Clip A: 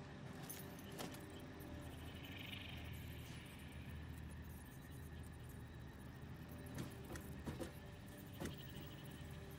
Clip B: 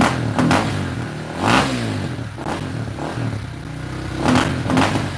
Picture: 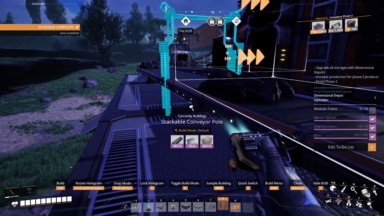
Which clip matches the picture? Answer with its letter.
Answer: A